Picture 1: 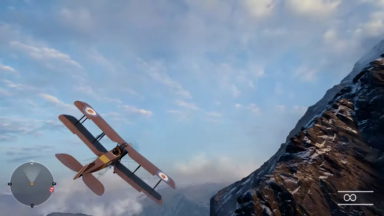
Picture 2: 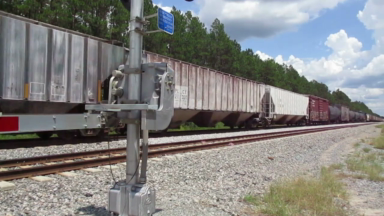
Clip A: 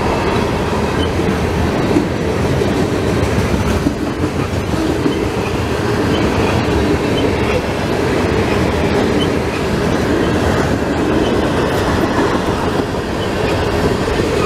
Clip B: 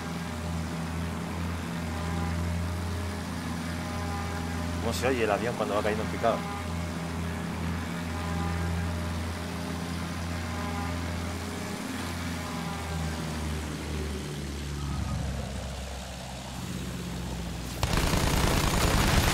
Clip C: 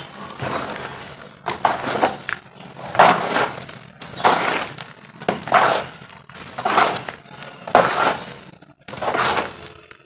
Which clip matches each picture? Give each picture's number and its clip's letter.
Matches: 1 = B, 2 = A